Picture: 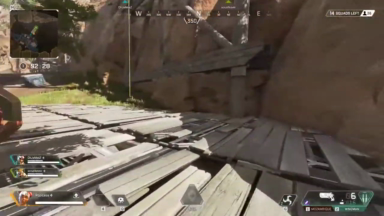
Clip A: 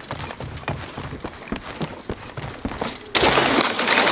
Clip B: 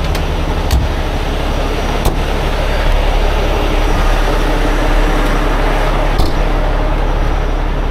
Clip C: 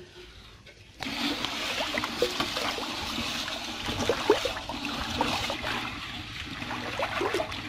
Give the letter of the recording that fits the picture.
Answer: A